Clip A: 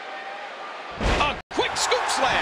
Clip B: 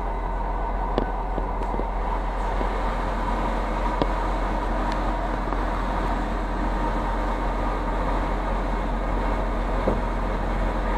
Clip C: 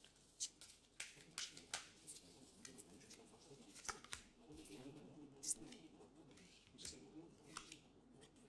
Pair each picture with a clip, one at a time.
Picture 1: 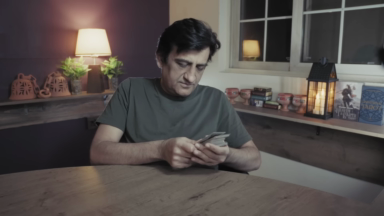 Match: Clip C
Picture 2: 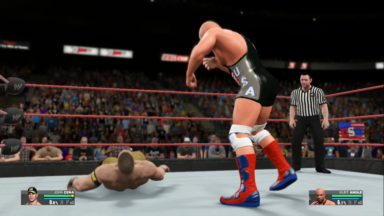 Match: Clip A